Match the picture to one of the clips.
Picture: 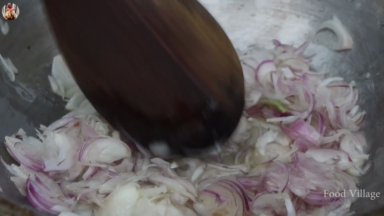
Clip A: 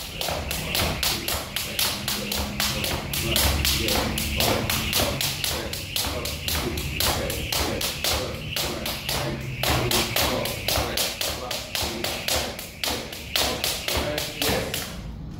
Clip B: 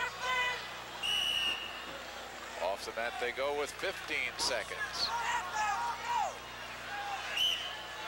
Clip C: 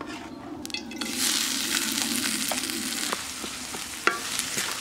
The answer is C